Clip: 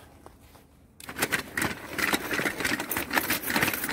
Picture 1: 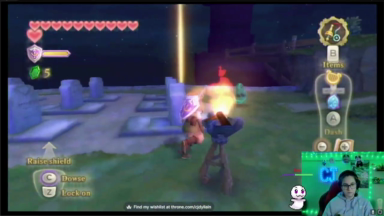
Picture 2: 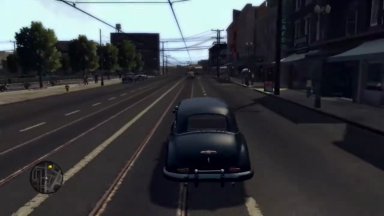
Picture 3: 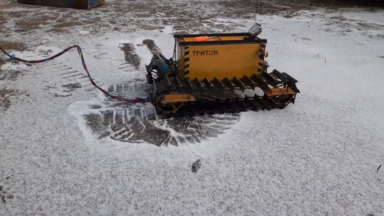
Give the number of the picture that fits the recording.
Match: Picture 3